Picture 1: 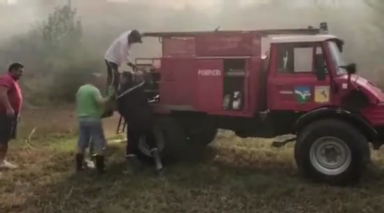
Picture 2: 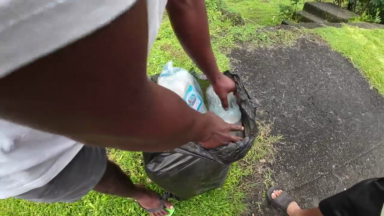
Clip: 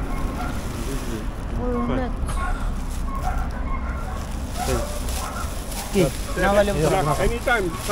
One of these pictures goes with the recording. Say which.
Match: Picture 2